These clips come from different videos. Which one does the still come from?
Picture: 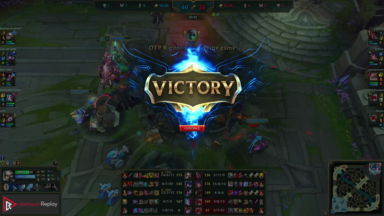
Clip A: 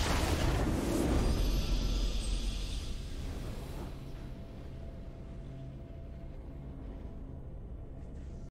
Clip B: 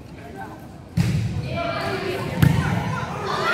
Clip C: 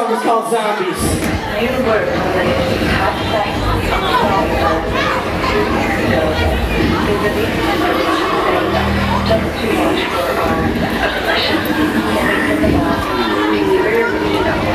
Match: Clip A